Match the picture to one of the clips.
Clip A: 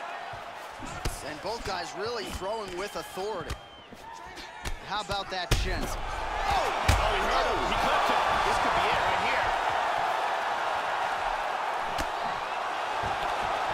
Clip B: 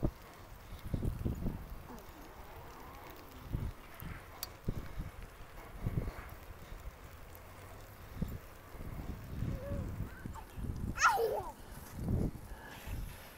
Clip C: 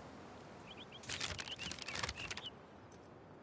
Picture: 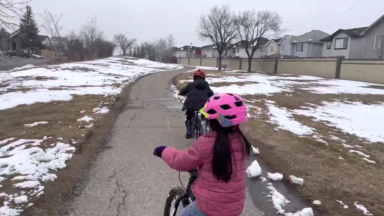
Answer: B